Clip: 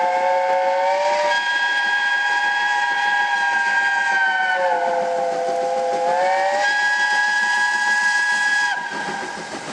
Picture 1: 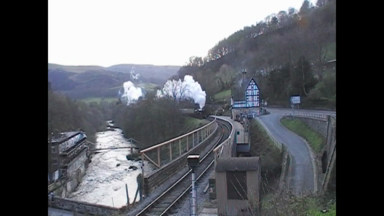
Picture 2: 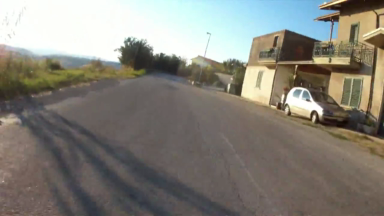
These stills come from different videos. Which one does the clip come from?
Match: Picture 1